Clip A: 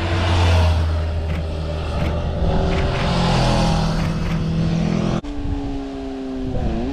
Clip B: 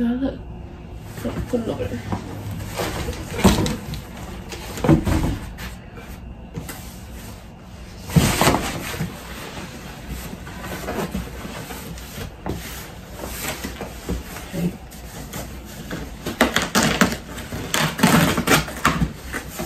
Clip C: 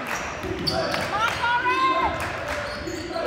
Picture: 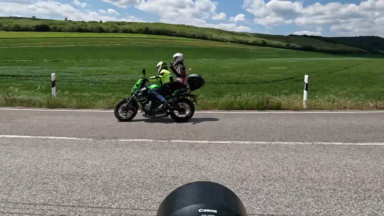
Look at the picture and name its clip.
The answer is A